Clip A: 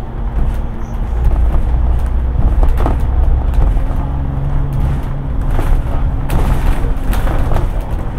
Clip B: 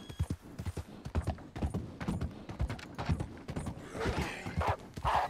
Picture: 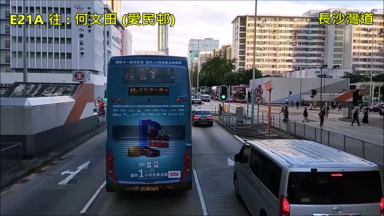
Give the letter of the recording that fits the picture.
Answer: A